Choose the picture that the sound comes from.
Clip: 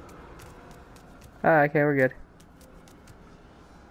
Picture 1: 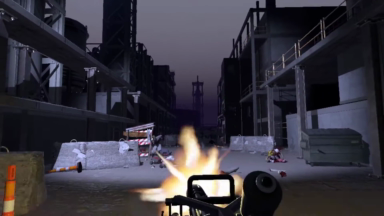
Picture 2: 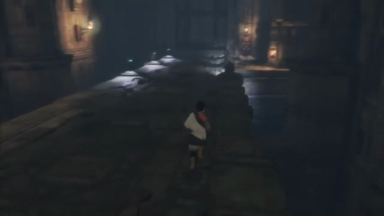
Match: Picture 2